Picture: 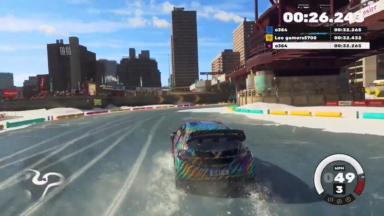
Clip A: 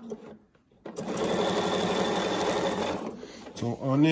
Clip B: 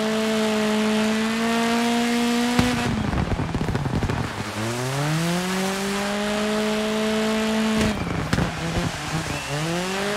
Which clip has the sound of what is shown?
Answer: B